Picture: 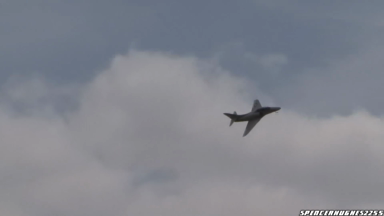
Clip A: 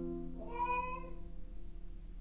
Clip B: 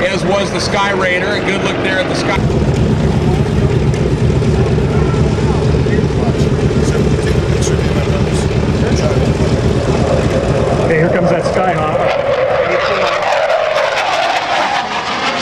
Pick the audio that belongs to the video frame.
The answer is B